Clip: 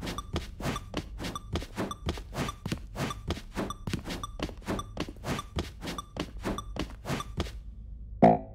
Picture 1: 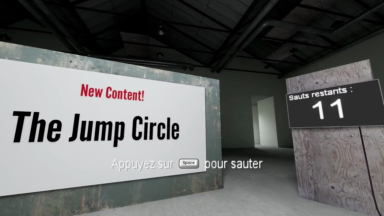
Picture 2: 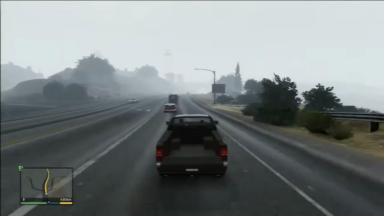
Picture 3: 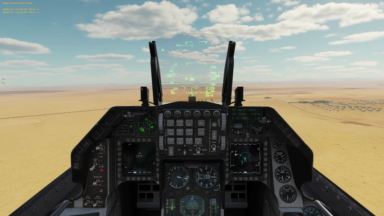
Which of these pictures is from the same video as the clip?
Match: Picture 1